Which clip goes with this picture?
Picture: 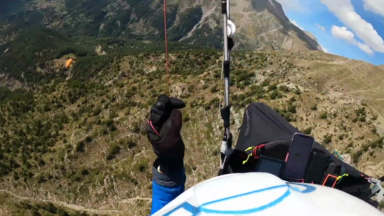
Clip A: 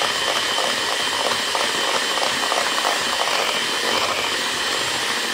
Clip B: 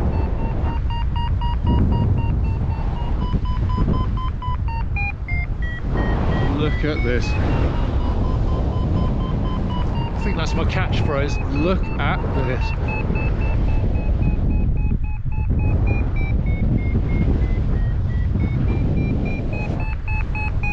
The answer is B